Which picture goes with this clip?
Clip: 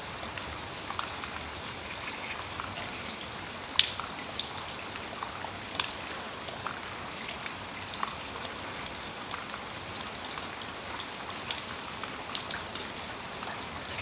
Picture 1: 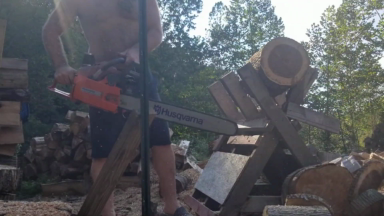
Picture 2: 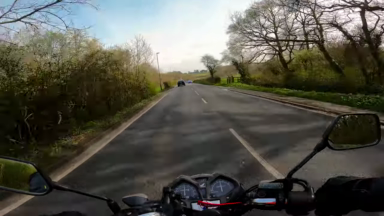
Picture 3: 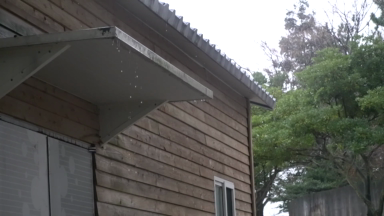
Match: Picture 3